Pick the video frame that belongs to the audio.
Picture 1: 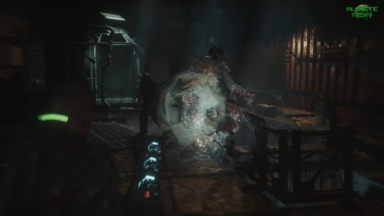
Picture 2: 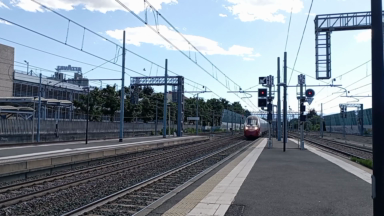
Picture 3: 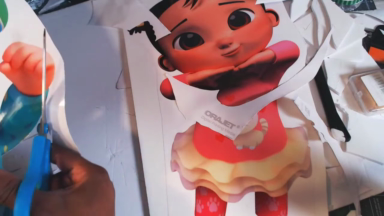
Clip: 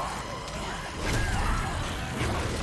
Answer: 1